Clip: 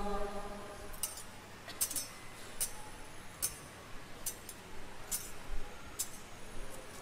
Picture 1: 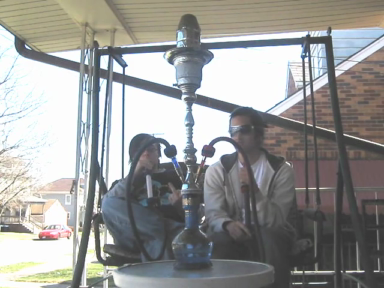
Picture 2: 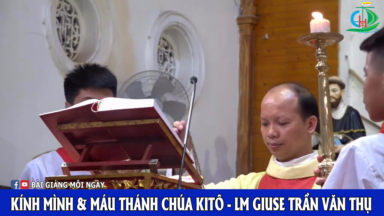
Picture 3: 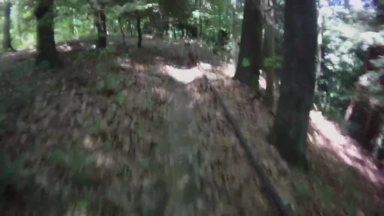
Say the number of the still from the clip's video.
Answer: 2